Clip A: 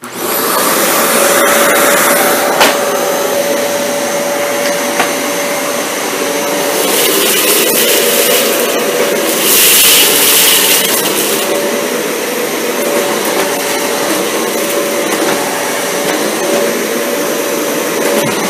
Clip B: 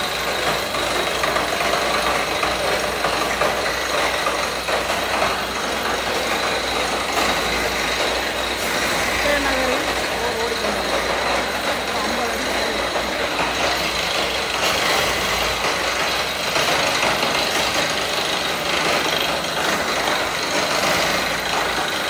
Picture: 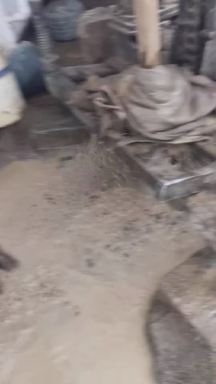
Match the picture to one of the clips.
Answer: B